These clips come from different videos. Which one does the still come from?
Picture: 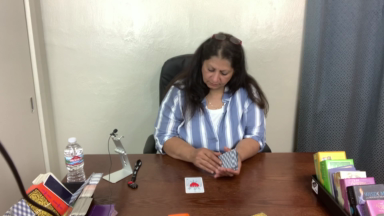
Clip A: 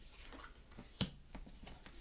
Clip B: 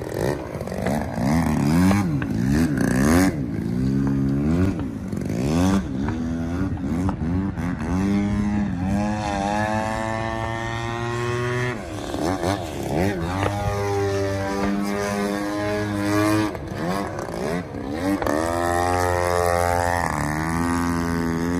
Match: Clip A